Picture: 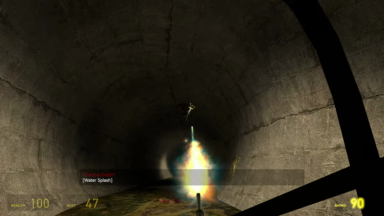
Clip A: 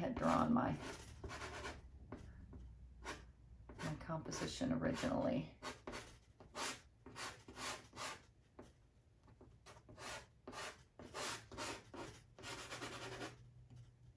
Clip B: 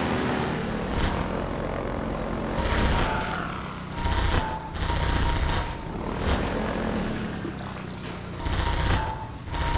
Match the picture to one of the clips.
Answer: B